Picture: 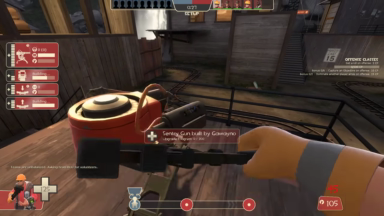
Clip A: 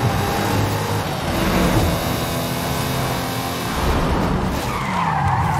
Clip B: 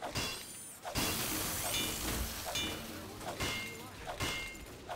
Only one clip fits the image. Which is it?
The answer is B